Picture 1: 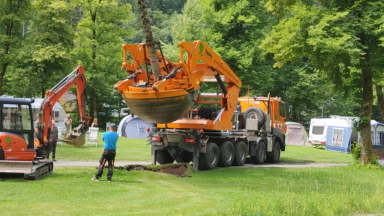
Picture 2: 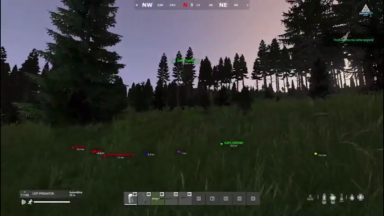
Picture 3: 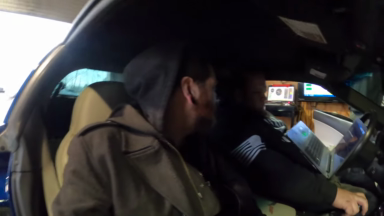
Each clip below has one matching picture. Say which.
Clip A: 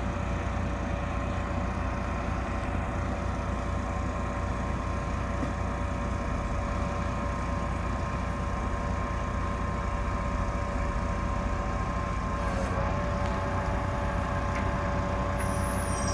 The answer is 1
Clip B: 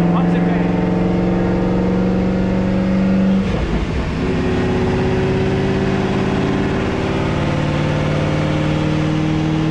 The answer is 3